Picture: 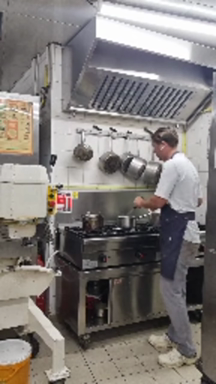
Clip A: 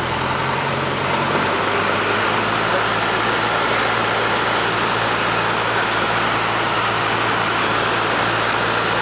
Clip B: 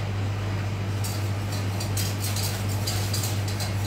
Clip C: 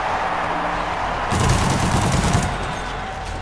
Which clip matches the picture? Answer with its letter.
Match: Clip B